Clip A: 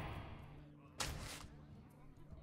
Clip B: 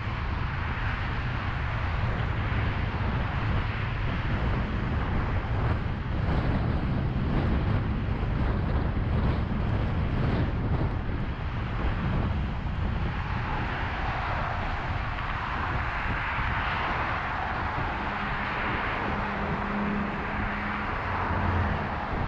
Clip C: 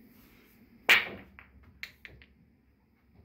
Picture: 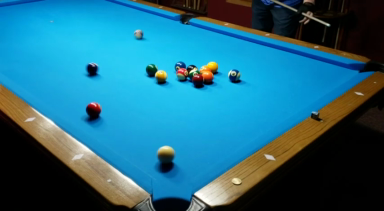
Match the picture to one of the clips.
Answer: C